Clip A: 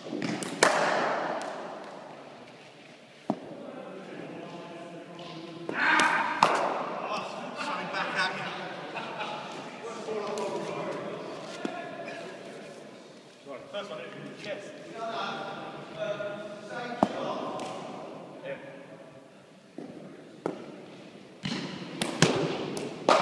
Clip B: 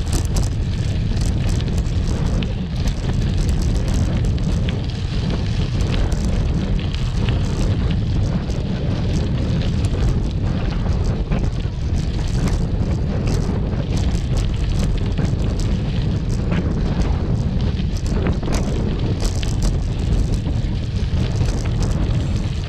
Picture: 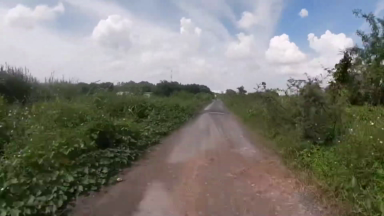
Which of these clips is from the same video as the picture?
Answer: B